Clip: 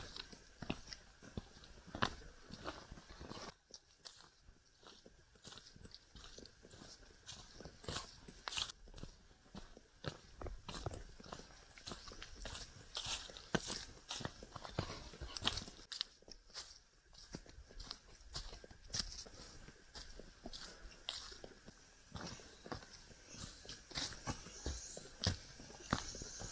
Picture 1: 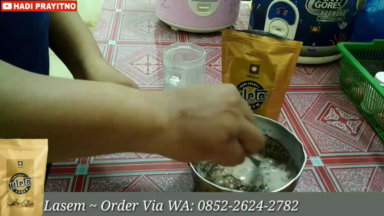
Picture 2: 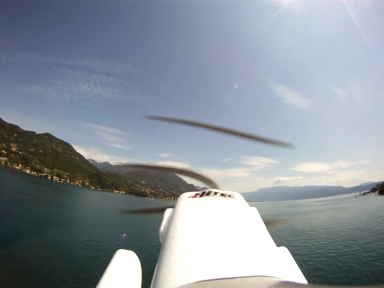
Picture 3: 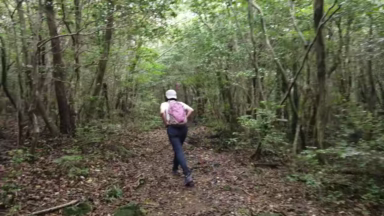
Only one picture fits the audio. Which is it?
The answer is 3